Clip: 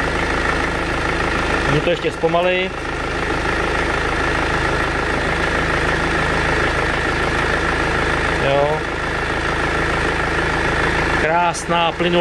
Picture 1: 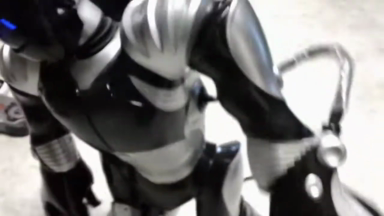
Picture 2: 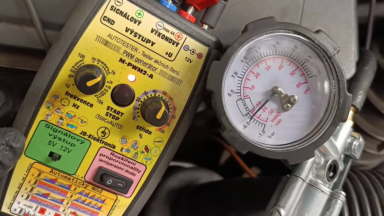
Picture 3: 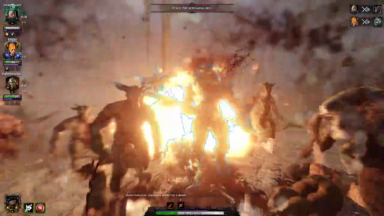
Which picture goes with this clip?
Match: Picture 2